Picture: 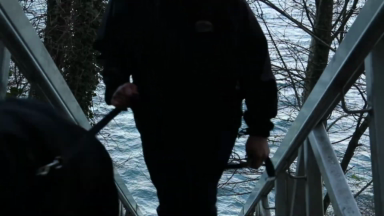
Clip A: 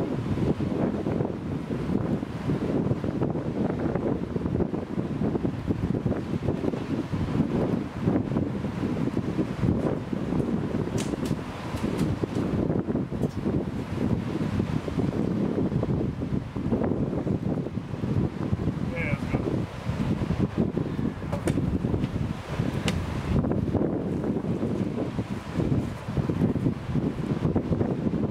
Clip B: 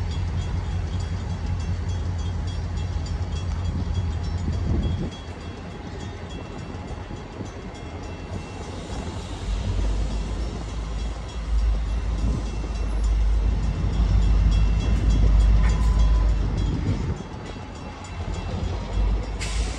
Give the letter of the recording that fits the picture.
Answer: A